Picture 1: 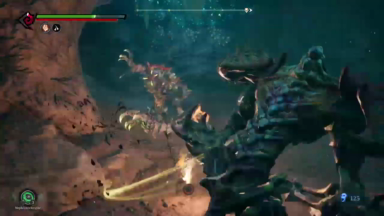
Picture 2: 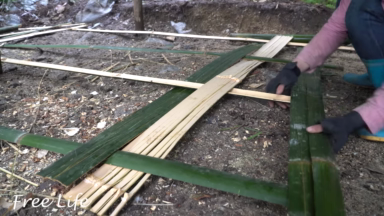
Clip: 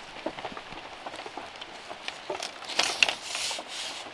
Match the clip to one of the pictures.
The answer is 2